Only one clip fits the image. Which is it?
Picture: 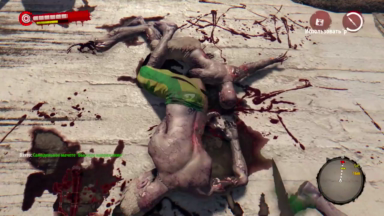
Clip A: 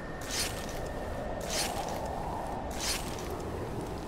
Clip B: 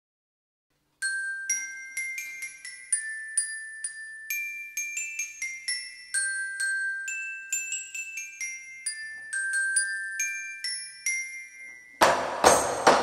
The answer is A